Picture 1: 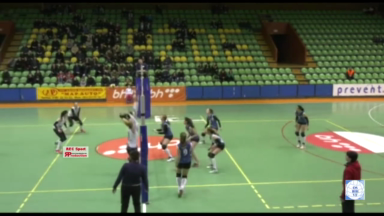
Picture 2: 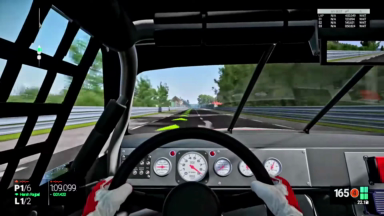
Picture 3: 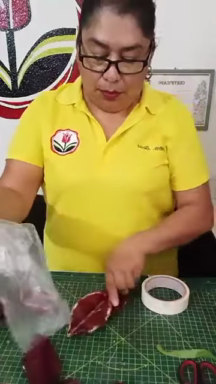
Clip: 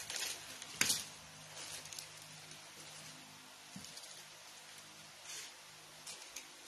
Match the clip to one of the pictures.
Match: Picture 3